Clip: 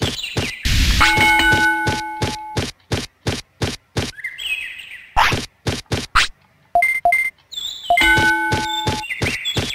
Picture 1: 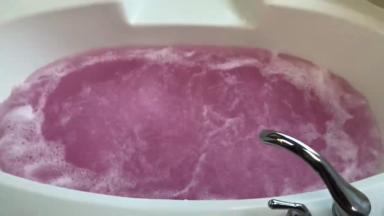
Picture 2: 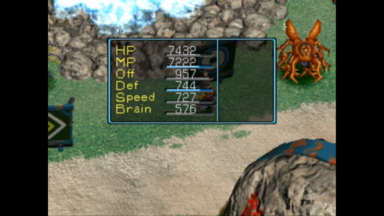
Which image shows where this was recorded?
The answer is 2